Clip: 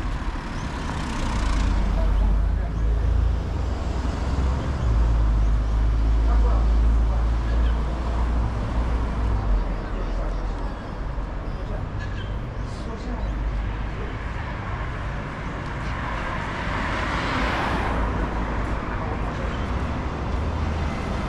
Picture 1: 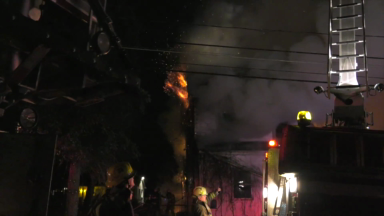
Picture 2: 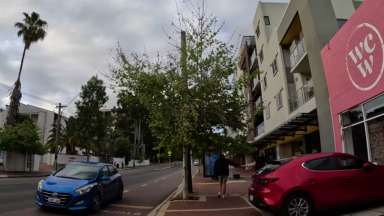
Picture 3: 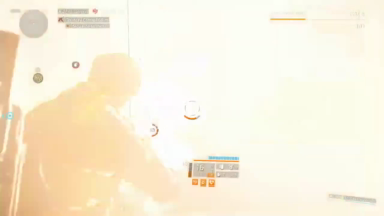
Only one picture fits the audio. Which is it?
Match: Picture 2